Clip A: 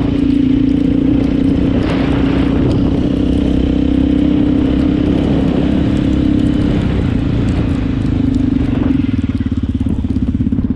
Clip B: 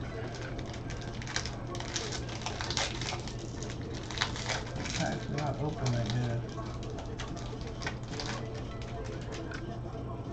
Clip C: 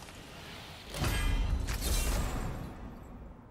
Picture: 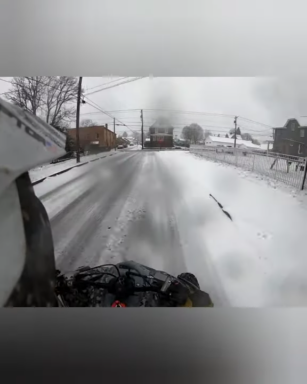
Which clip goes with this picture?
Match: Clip A